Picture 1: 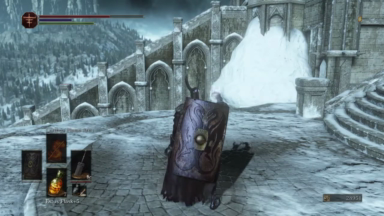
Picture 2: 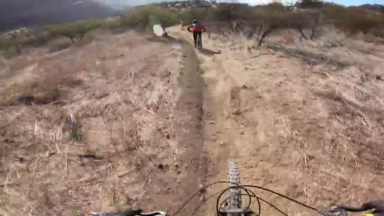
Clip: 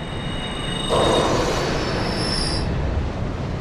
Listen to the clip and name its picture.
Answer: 1